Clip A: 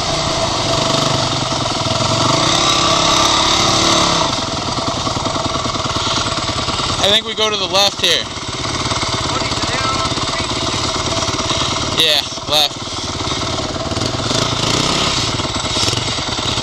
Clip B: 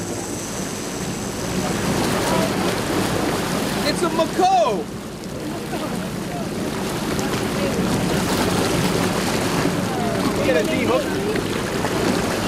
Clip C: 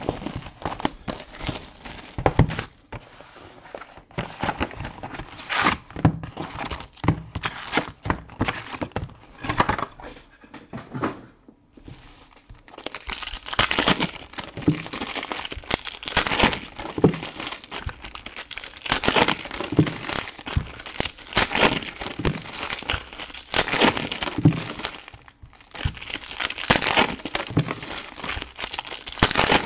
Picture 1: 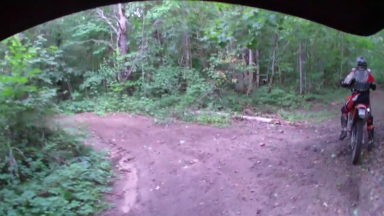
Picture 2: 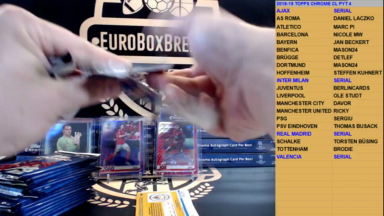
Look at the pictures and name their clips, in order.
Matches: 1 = A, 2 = C